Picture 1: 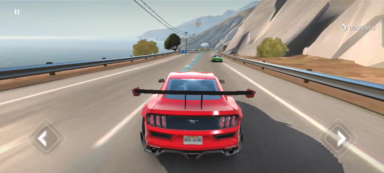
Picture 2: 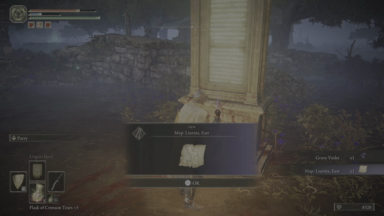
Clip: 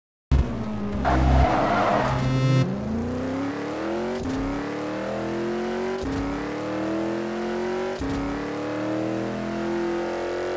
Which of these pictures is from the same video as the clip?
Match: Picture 1